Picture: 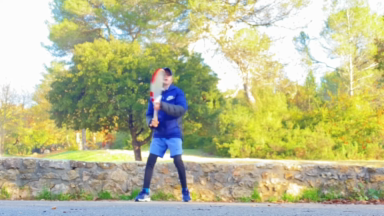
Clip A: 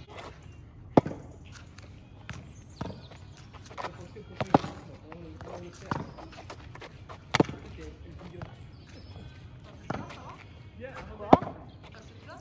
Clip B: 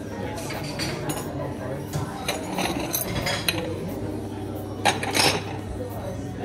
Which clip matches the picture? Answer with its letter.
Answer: A